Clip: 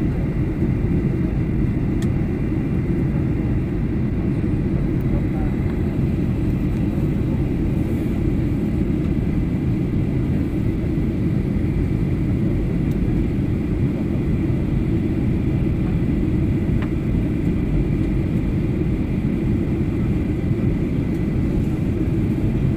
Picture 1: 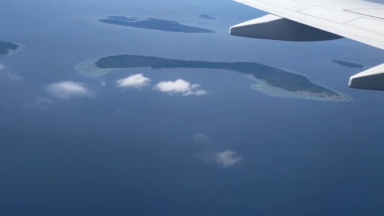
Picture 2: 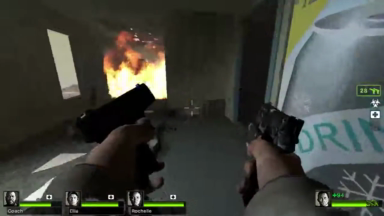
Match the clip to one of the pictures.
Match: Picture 1